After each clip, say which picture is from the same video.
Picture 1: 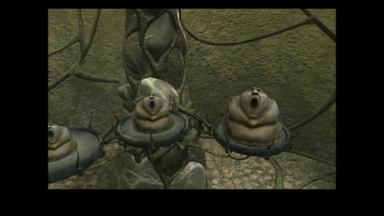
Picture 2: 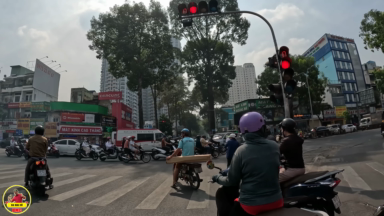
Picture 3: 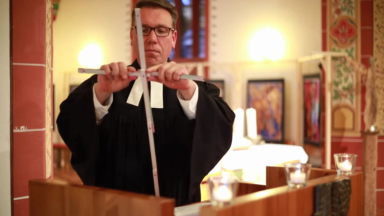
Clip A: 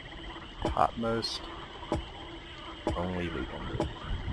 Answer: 1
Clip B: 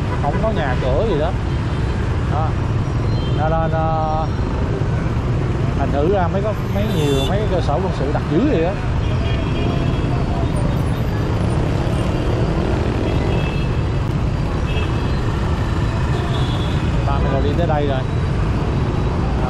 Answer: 2